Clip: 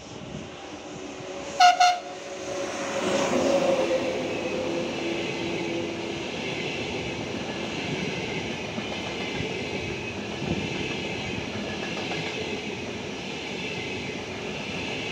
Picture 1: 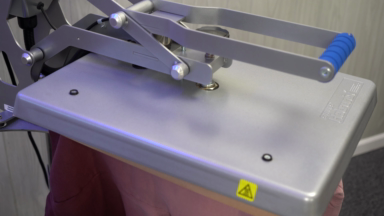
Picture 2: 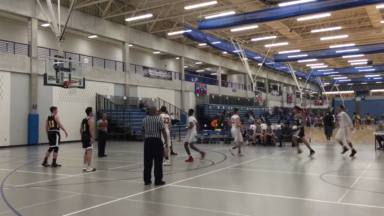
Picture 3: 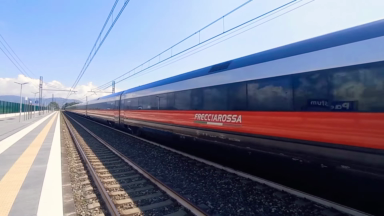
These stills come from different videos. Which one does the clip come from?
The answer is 3